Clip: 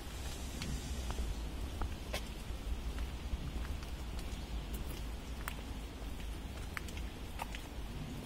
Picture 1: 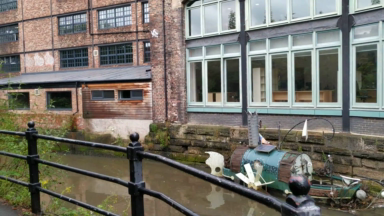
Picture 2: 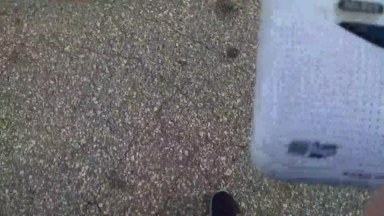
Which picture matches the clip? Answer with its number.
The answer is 1